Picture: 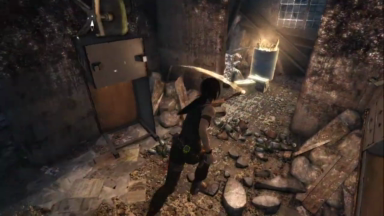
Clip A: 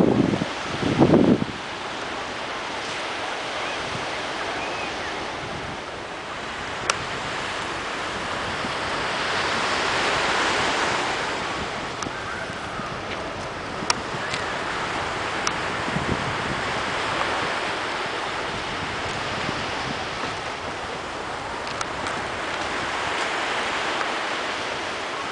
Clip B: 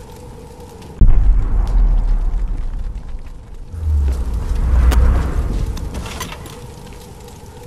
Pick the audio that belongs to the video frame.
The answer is B